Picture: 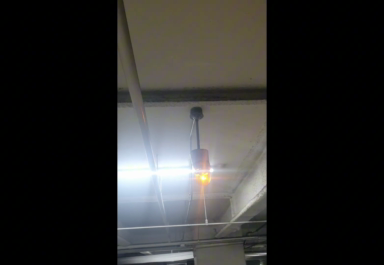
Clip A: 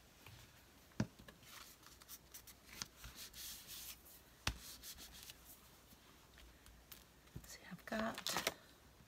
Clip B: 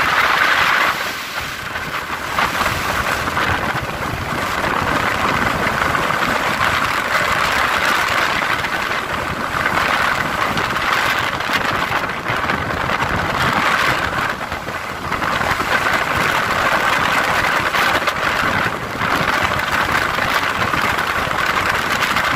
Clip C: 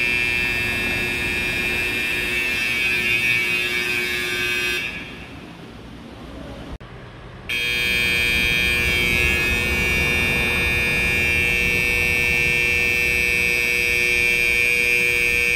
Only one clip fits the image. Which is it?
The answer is C